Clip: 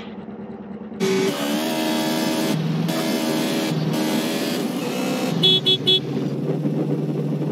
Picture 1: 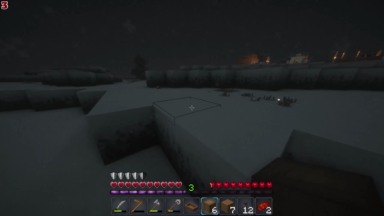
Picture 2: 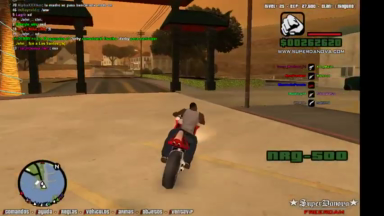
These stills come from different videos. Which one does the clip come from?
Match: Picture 2